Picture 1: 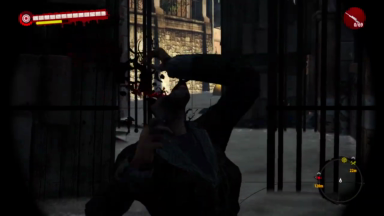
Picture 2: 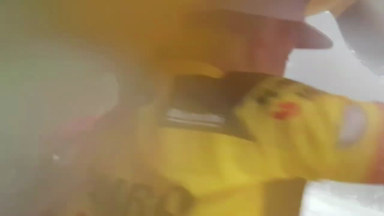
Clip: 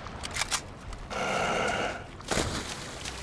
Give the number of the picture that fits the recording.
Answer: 1